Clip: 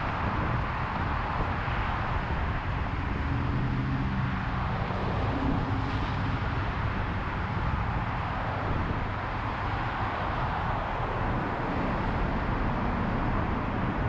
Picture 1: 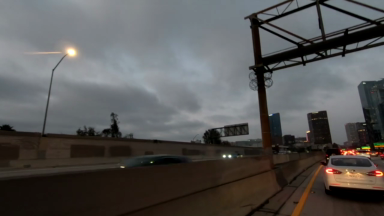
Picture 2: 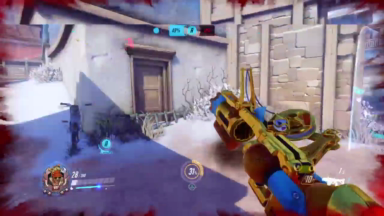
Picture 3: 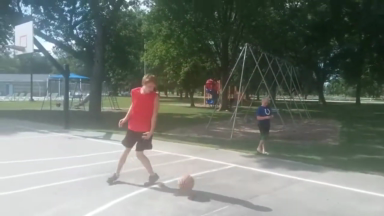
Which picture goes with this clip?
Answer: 1